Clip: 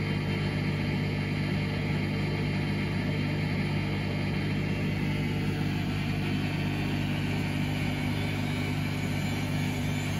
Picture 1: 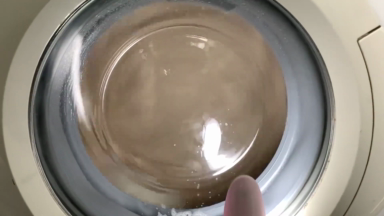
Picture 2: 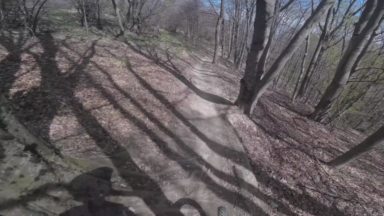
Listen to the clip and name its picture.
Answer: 1